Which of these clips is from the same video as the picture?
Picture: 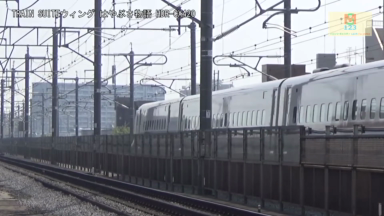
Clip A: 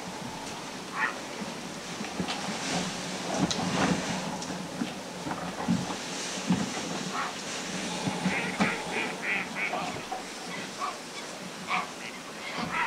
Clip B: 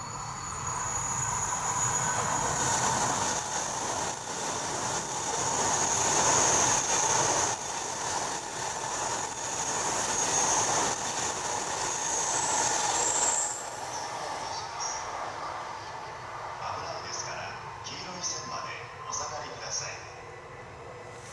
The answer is B